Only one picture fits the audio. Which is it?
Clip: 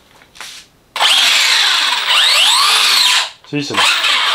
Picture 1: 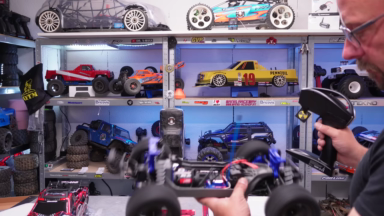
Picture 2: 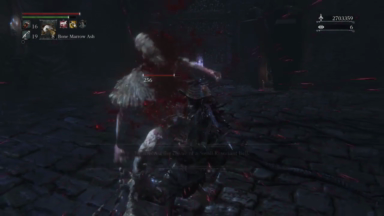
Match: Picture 1